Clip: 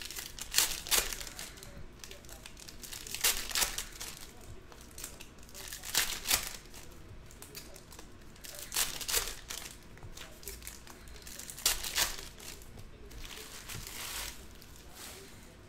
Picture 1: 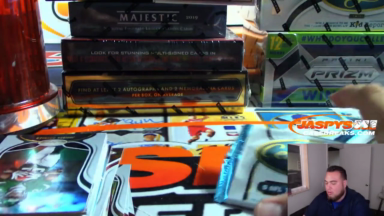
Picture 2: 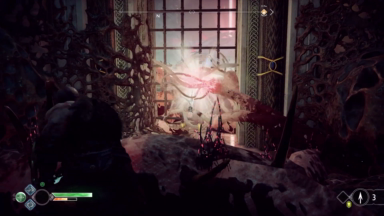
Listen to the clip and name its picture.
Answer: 1